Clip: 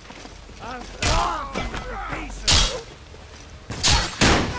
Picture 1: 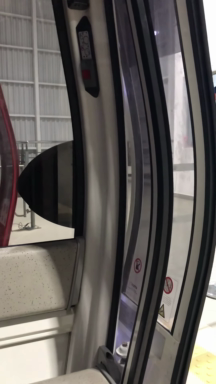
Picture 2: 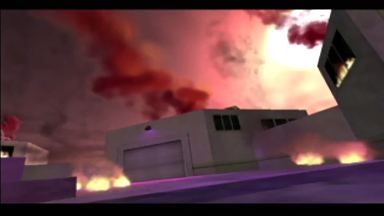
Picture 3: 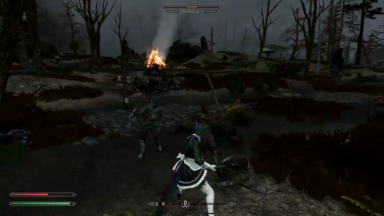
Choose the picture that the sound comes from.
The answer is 3